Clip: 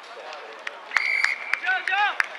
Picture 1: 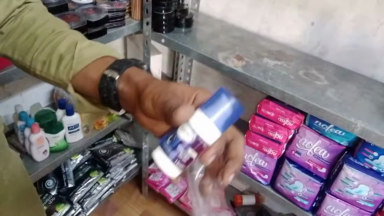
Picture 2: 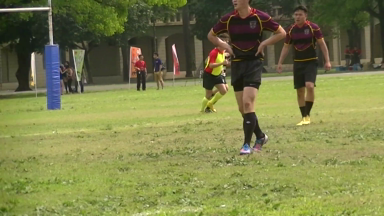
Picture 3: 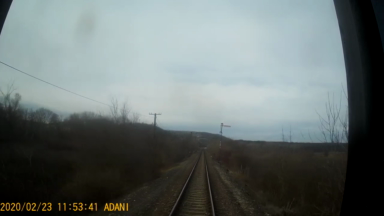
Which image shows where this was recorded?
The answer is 2